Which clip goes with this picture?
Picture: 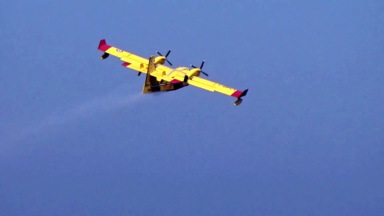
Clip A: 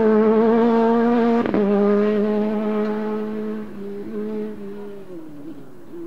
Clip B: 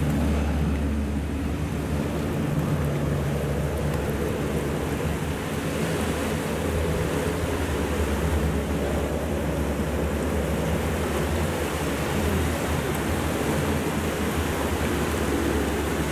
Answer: B